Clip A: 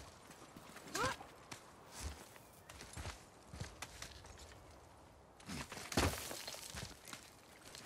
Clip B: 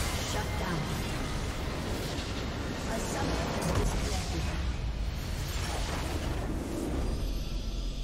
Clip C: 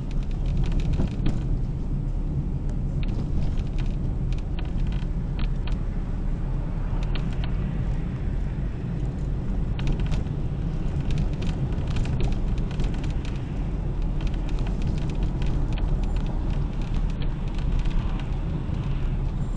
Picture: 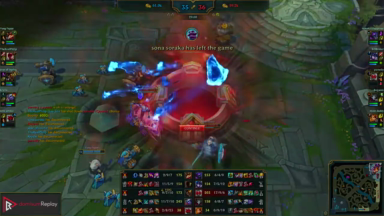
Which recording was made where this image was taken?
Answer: B